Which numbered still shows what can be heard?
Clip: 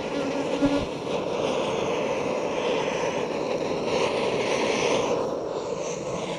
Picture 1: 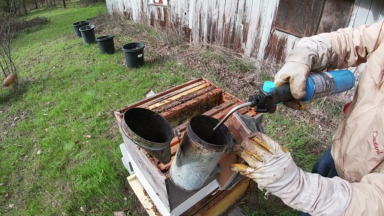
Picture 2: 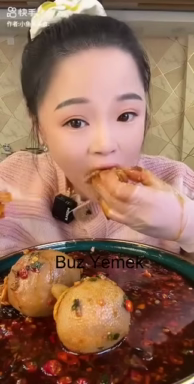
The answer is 1